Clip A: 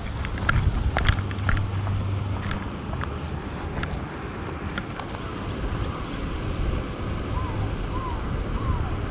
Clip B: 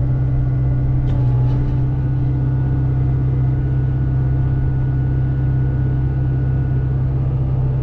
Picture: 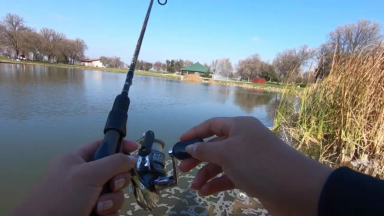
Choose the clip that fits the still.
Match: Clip A